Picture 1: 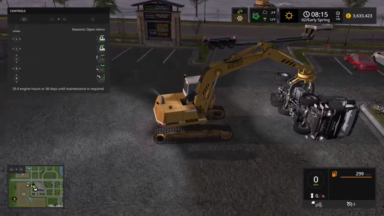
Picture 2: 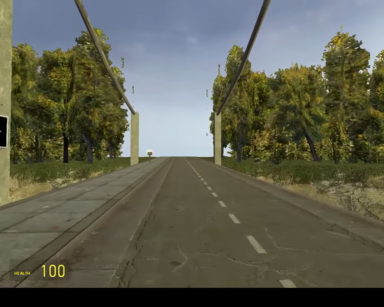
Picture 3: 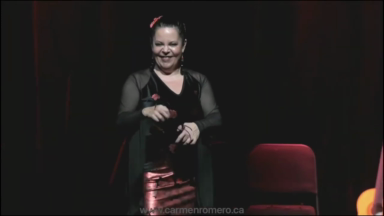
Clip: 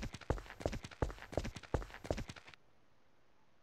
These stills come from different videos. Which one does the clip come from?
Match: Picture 2